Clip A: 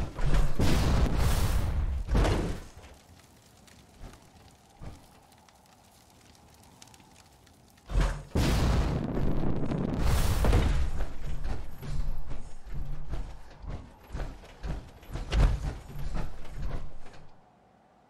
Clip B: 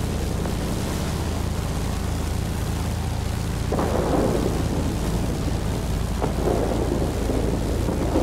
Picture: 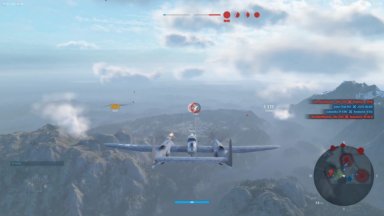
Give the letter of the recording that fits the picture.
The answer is B